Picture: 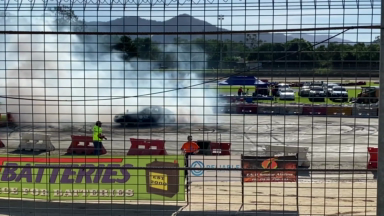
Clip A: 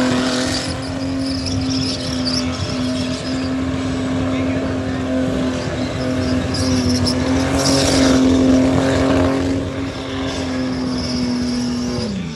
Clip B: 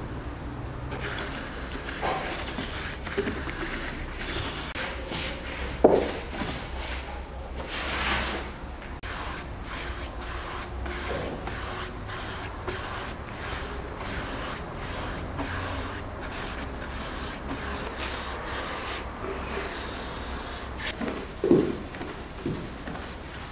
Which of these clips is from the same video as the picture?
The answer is A